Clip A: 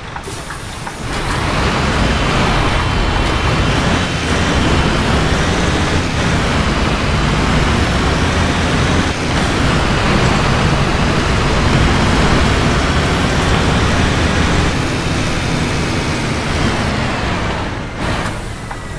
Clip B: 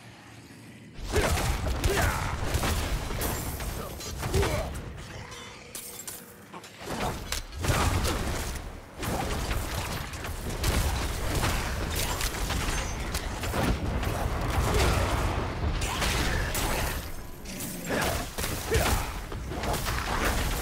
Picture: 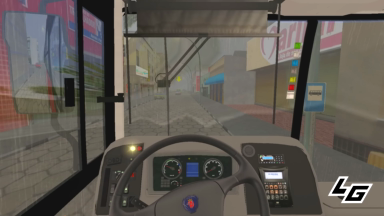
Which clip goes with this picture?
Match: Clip A